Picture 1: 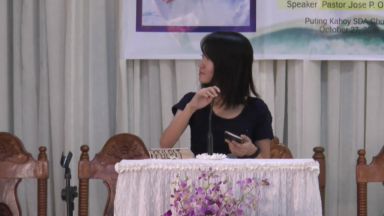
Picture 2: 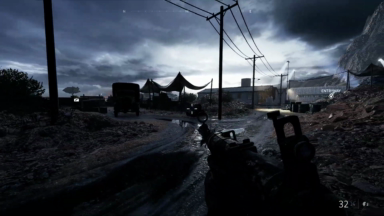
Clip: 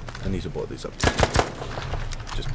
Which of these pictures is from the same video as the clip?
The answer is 2